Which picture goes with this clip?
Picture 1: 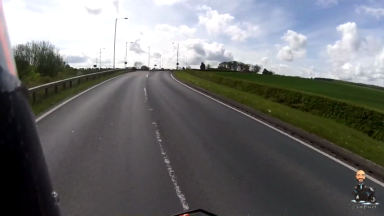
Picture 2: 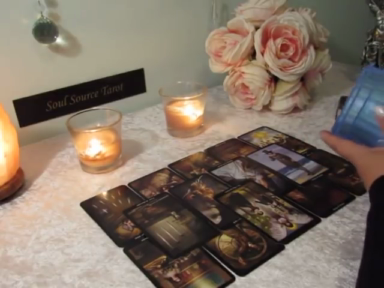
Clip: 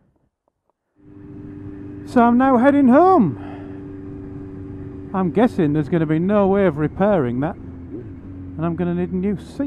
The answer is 1